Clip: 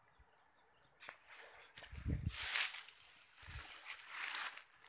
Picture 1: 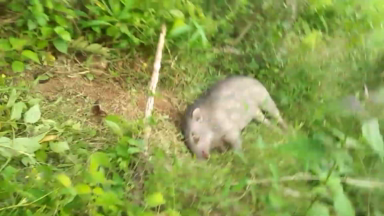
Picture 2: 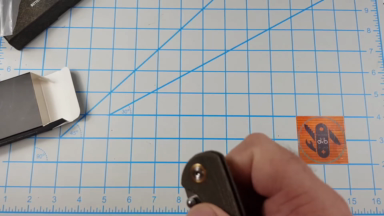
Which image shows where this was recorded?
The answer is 1